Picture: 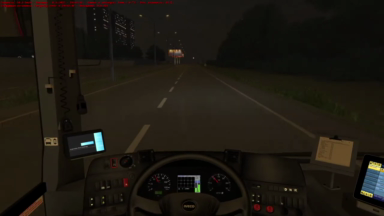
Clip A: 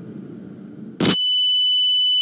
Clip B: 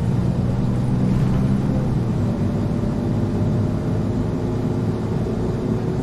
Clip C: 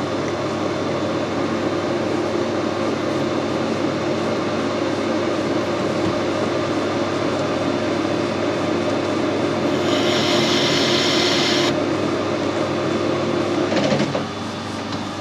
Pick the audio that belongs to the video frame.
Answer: B